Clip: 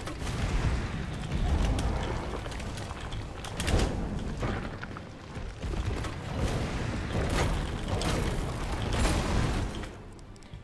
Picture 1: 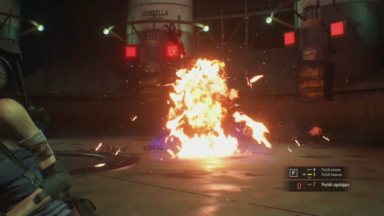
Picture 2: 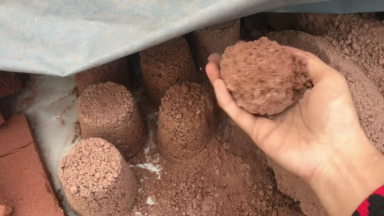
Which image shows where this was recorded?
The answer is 1